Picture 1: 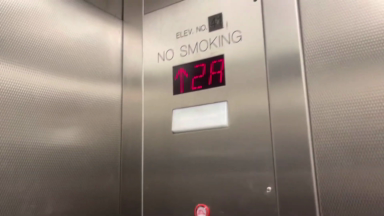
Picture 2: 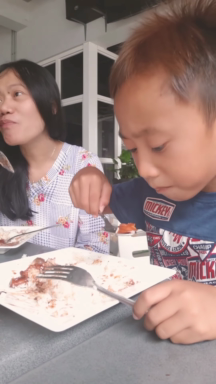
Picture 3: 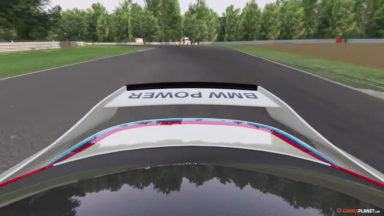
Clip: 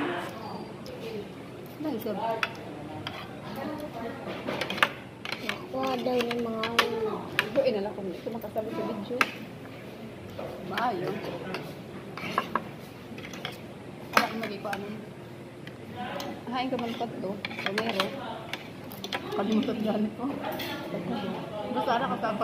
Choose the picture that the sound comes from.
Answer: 2